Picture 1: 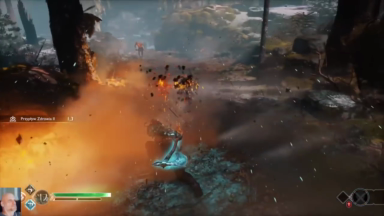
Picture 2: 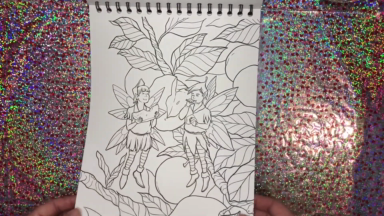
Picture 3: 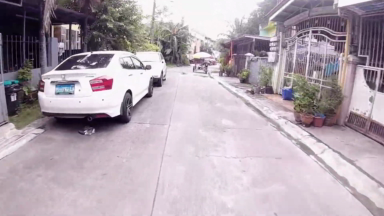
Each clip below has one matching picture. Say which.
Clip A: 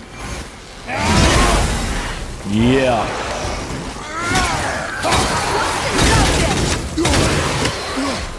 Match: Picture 1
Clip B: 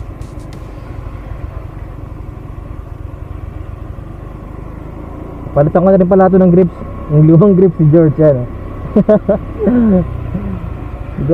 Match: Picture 3